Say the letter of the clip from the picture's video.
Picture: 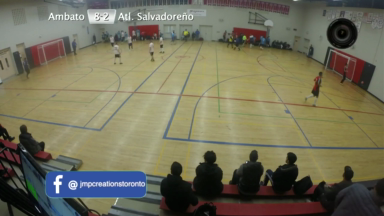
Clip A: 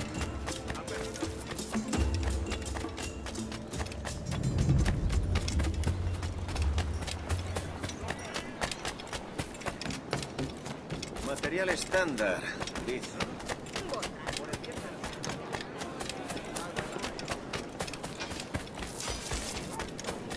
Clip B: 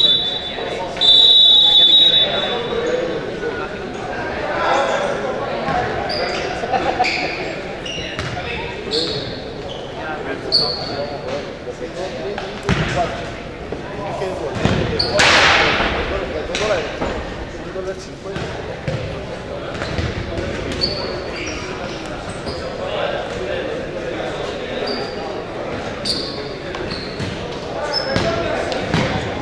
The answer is B